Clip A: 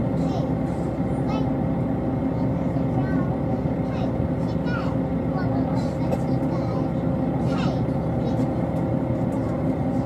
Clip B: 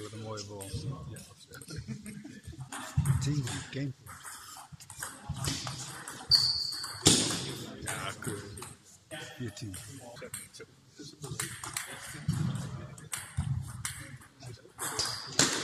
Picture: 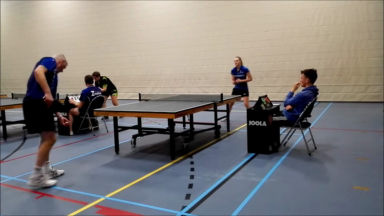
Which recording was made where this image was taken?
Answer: B